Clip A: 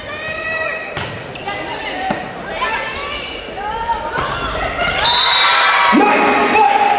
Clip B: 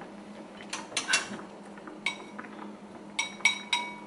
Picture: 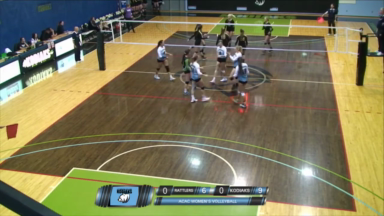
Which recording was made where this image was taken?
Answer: A